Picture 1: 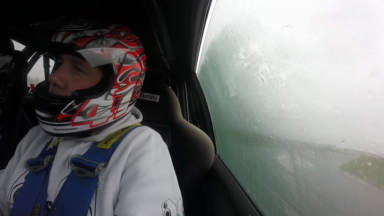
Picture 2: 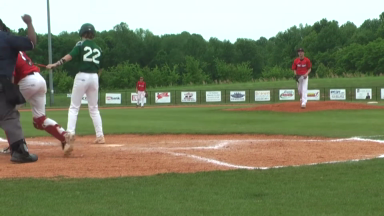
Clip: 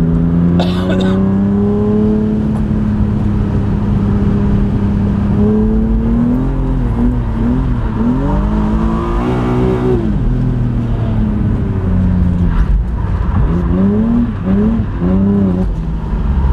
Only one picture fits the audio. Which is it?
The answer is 1